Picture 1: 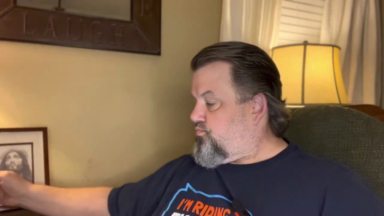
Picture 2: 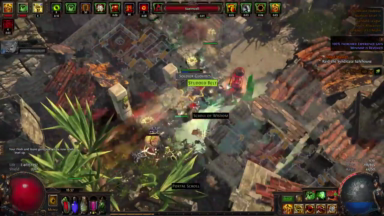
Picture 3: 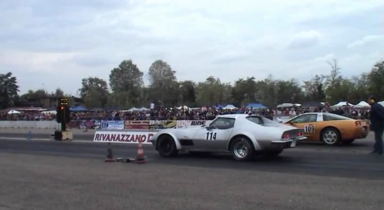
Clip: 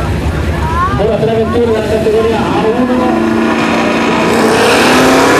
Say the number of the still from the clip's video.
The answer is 3